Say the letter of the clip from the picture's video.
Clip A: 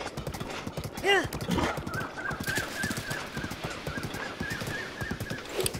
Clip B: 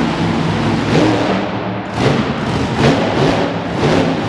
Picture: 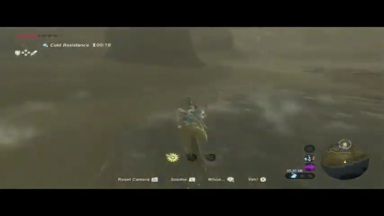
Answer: A